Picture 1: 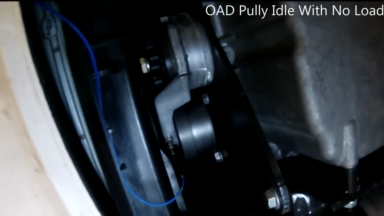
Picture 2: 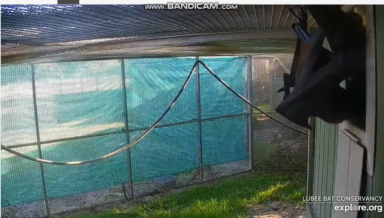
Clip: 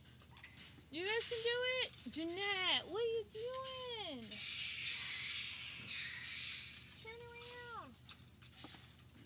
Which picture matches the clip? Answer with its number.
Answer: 2